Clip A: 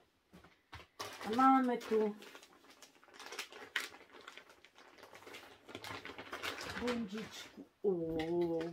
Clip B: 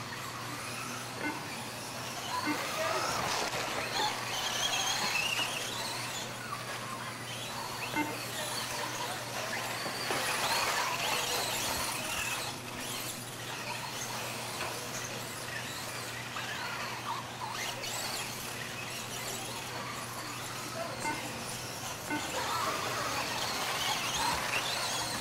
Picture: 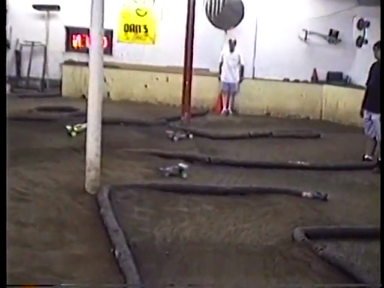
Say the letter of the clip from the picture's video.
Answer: B